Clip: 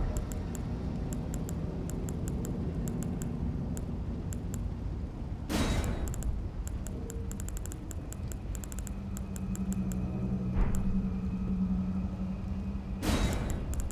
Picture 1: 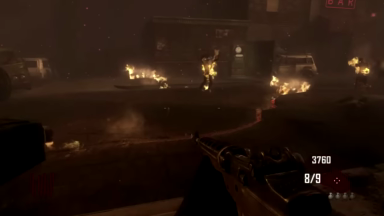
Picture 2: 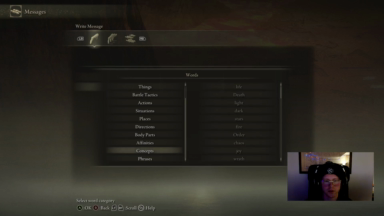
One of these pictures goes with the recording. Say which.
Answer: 2